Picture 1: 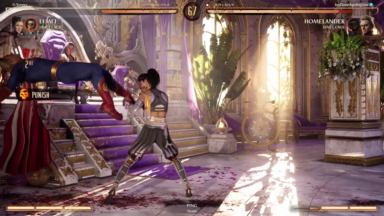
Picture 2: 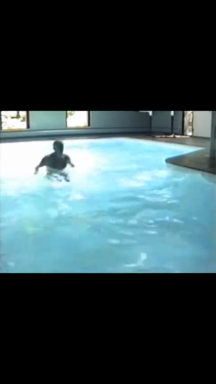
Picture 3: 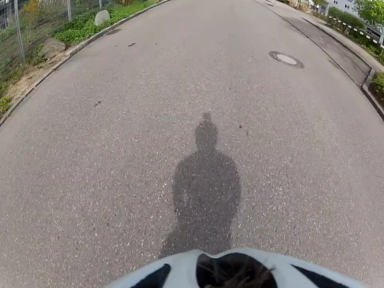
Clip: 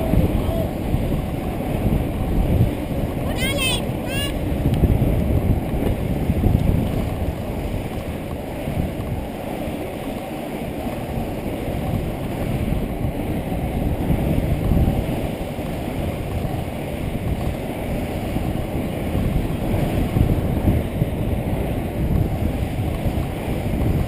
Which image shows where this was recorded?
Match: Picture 3